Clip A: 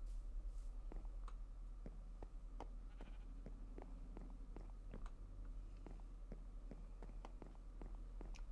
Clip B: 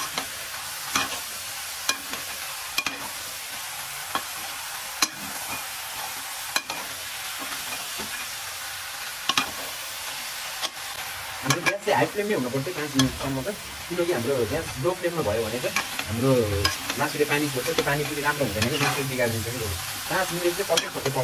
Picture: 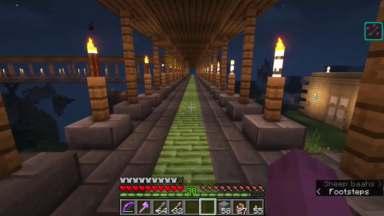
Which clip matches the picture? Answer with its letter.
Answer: A